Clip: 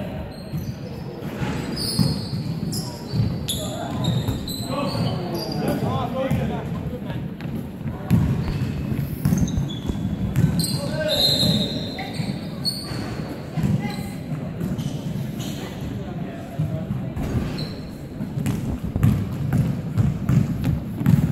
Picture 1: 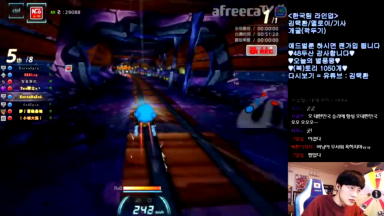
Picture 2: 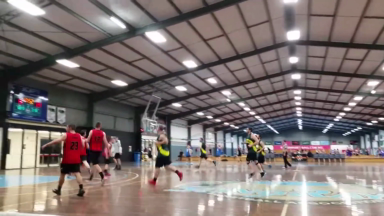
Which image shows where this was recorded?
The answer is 2